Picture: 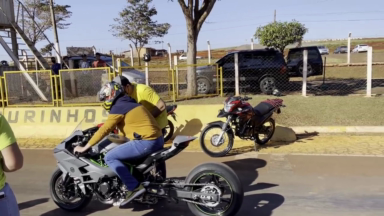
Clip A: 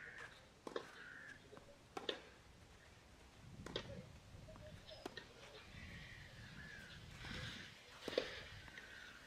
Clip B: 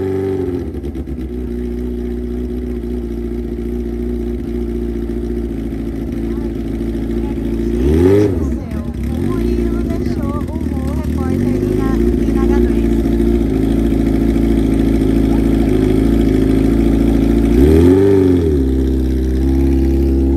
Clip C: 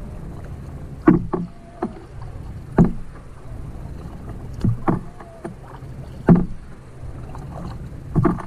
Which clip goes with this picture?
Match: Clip B